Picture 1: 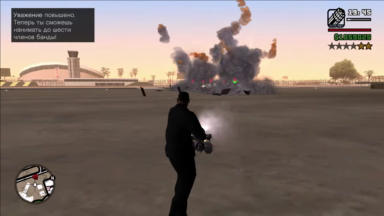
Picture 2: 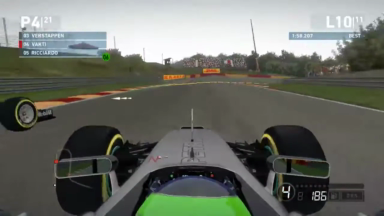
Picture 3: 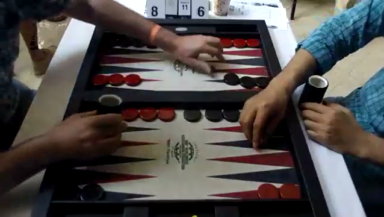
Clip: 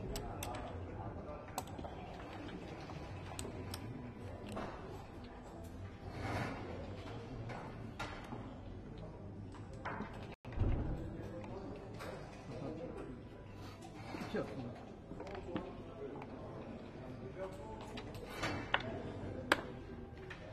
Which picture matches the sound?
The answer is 3